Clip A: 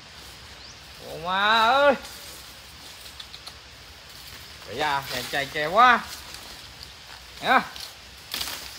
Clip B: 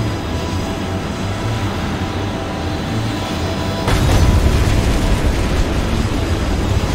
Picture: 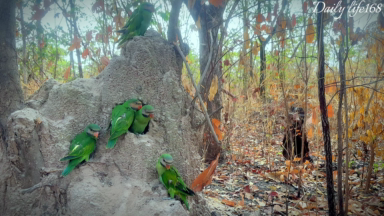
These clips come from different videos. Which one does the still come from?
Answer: A